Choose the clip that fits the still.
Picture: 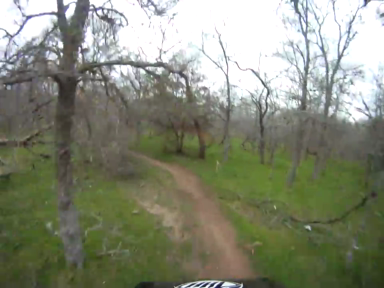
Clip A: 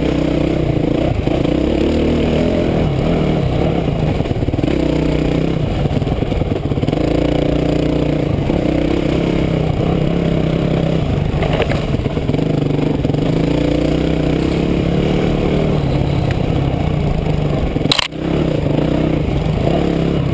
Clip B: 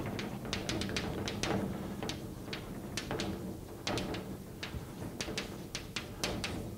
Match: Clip A